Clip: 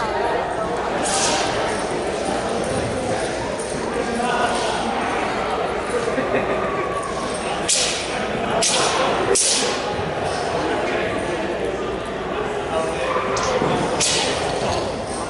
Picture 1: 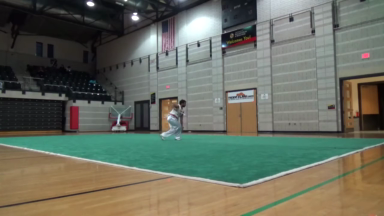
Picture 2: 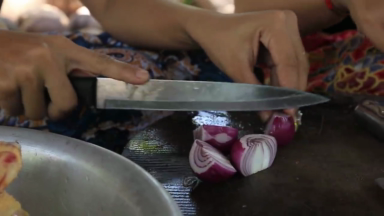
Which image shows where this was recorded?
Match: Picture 1